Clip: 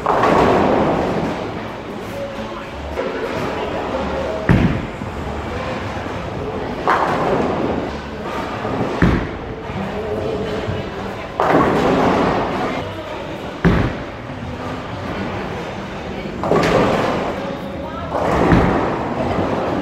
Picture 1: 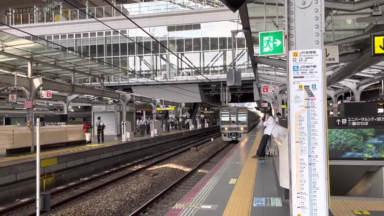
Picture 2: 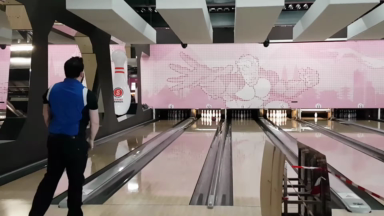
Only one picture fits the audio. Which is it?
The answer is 2